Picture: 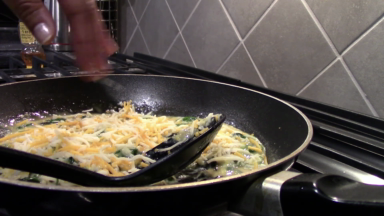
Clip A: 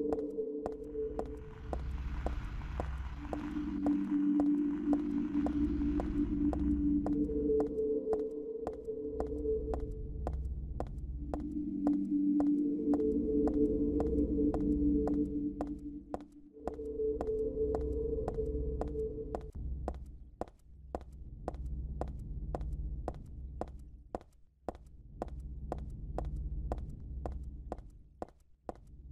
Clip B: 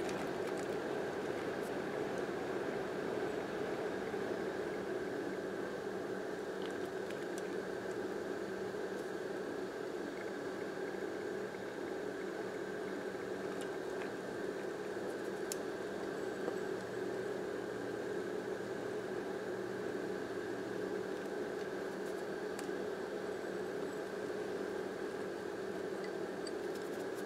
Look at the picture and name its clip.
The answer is B